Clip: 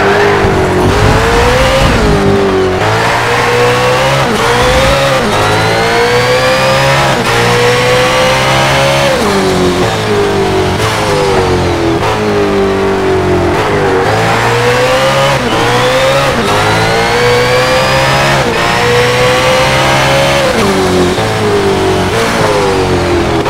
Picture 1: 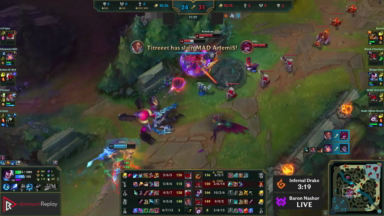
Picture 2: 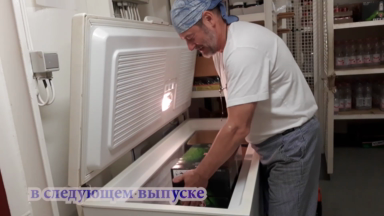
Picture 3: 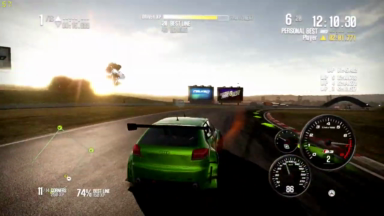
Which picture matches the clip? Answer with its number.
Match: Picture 3